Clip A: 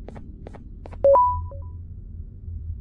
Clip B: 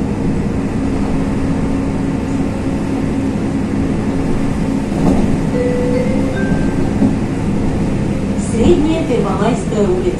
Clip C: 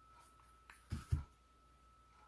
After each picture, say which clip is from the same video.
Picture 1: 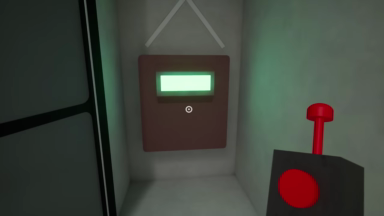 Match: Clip A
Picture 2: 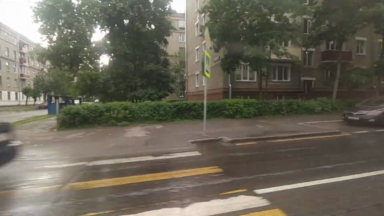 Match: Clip B